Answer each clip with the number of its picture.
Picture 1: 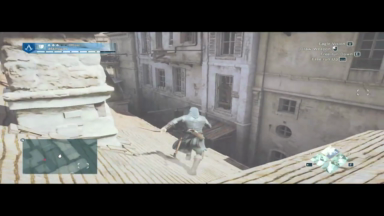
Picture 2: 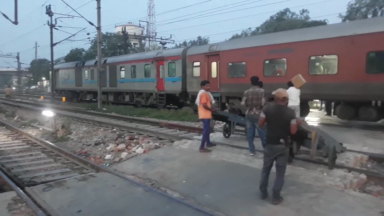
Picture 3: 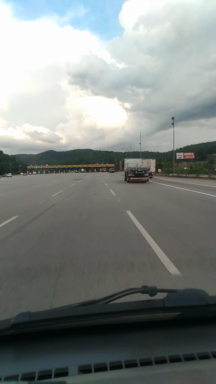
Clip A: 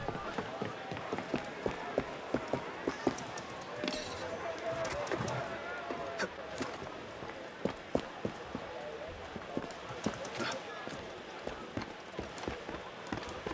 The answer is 1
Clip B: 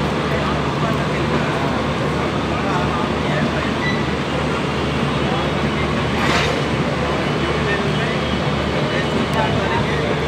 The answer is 2